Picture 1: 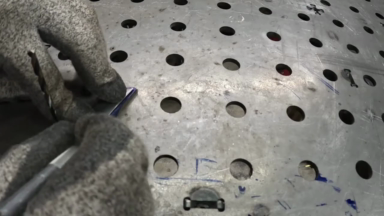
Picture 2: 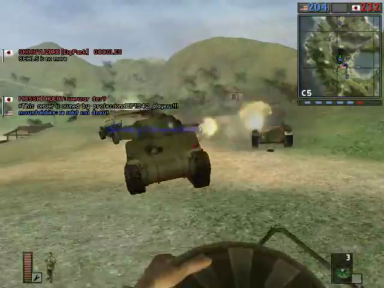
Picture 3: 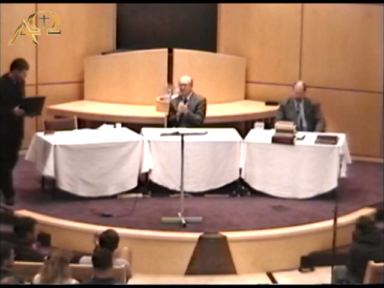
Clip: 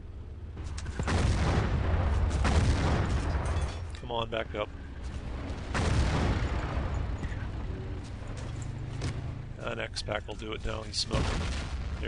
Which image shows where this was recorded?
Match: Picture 2